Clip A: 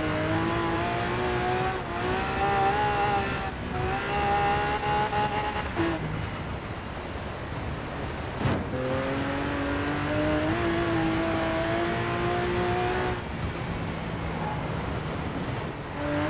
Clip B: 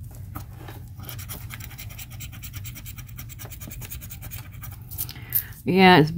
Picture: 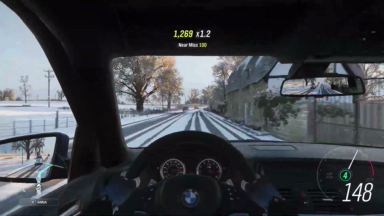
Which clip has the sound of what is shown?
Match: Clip A